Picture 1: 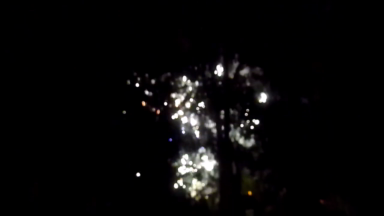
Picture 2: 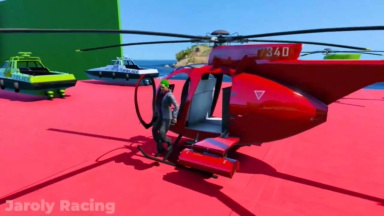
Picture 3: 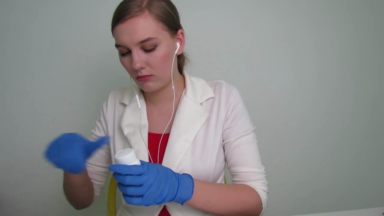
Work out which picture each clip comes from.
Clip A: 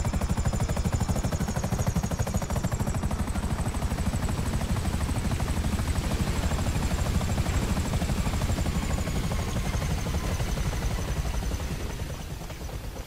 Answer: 2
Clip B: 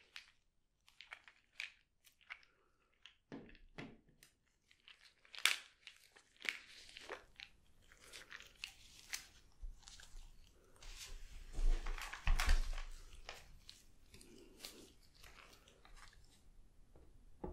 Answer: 3